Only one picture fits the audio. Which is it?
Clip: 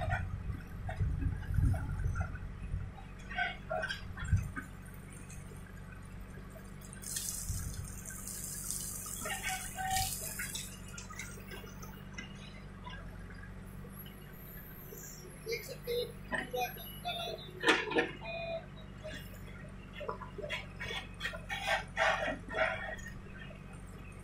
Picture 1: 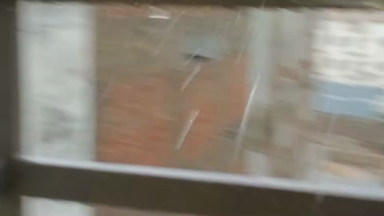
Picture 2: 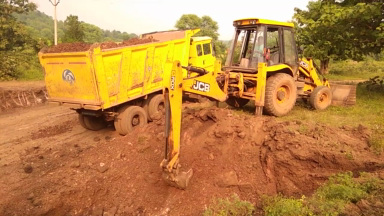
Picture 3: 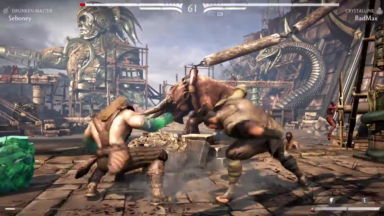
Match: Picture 2